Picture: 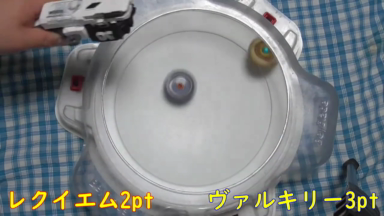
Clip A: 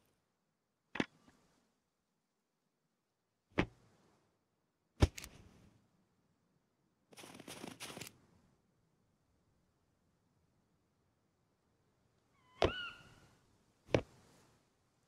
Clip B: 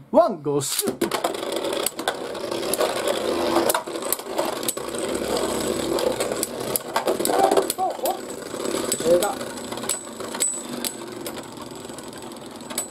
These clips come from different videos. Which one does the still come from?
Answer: B